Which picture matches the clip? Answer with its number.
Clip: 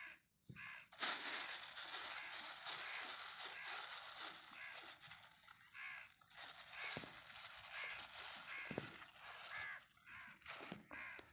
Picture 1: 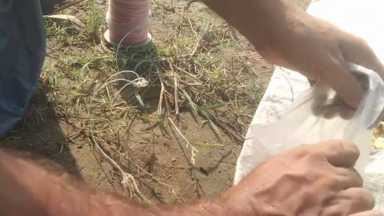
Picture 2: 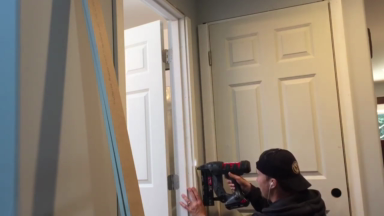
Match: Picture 1